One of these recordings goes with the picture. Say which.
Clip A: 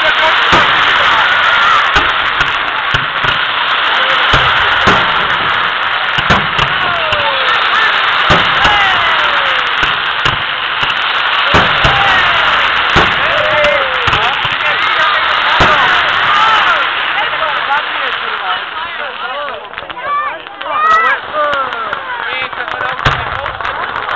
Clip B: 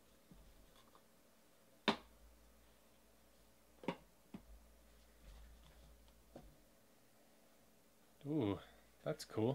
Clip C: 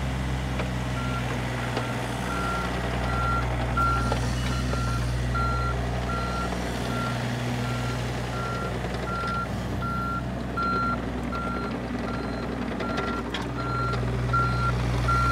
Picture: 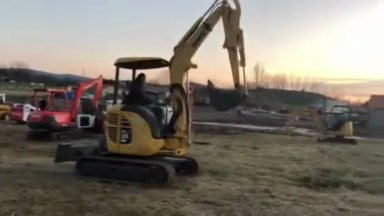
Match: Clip C